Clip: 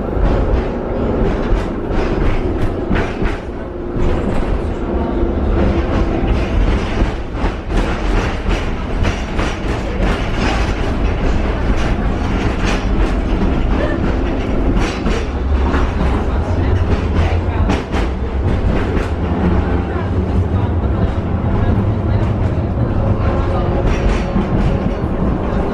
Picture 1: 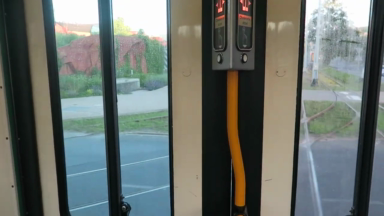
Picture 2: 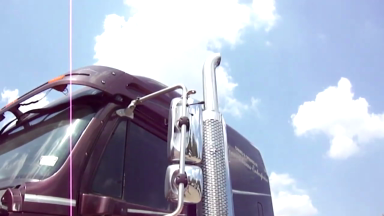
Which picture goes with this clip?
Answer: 1